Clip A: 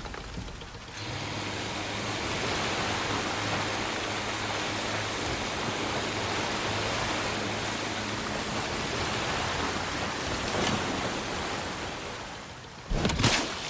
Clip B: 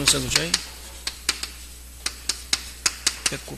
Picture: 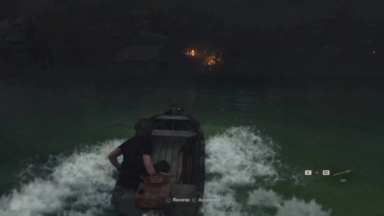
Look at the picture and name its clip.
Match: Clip A